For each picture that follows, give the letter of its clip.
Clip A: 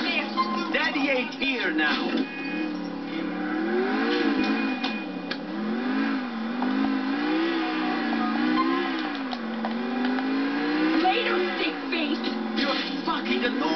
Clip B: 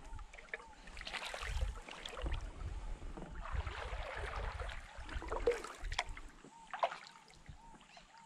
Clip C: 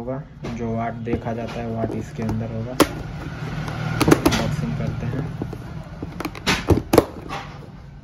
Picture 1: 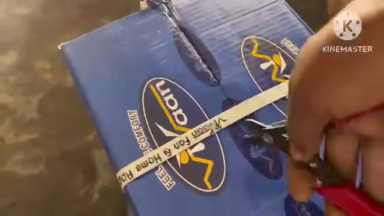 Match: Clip C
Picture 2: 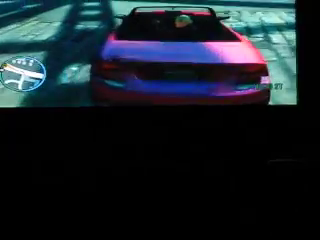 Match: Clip A